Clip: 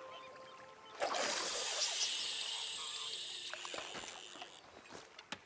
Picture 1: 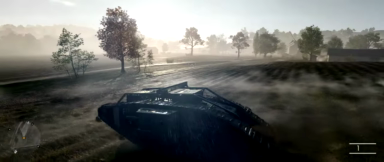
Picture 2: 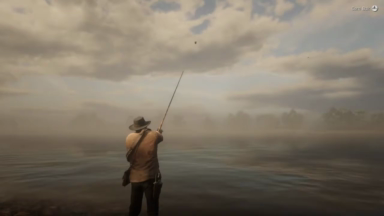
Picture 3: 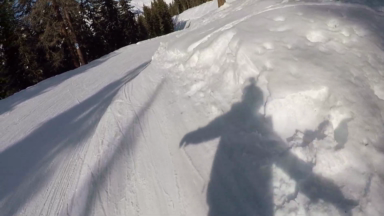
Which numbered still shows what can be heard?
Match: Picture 2